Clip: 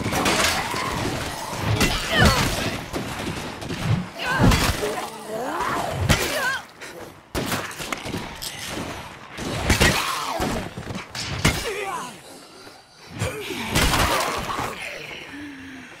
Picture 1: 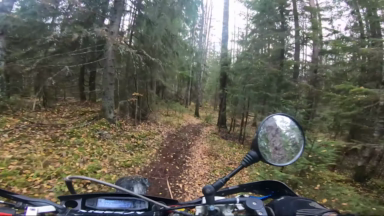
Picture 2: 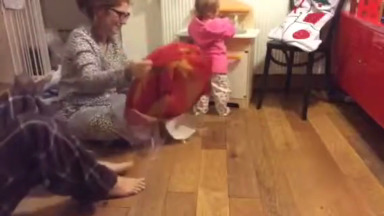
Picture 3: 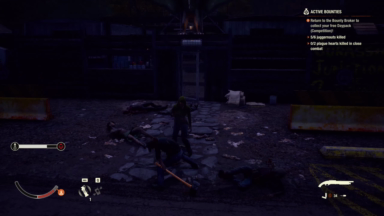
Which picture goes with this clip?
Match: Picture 3